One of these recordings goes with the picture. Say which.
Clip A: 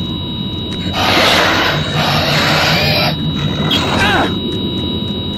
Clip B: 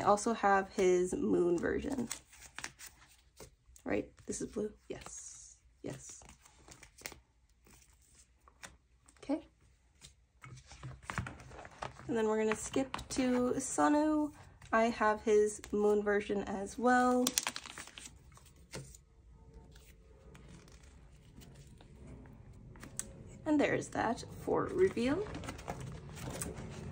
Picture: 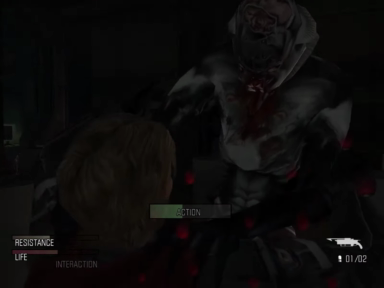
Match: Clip A